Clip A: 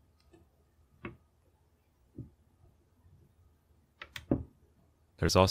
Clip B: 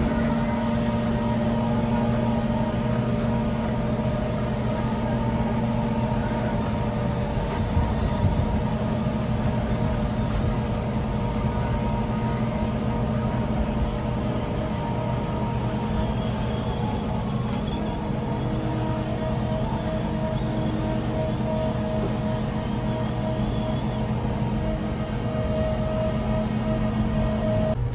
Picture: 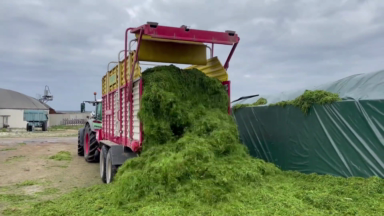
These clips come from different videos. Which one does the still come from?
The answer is B